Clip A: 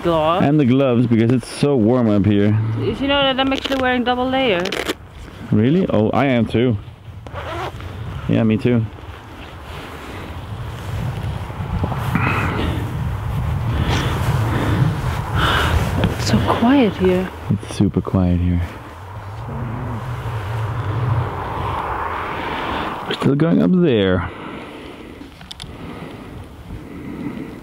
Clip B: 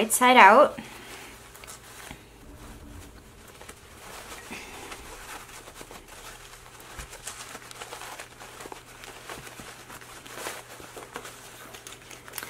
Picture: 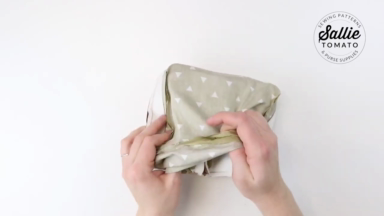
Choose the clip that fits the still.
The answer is B